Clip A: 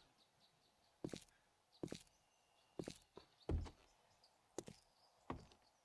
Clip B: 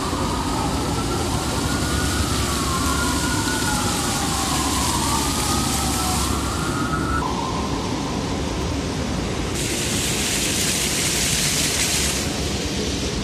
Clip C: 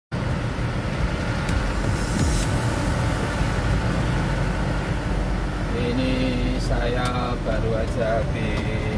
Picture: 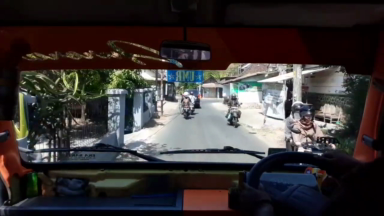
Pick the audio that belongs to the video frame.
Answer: C